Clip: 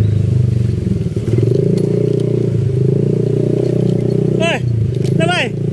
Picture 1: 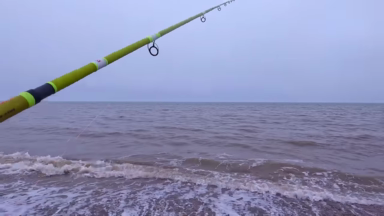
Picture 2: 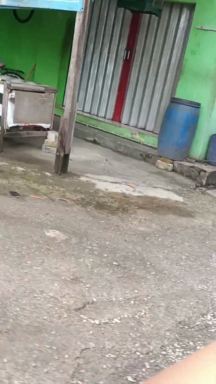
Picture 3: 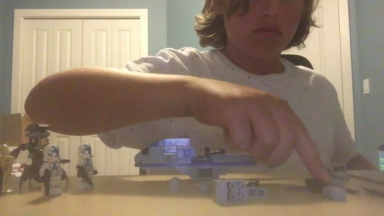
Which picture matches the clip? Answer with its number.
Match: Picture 2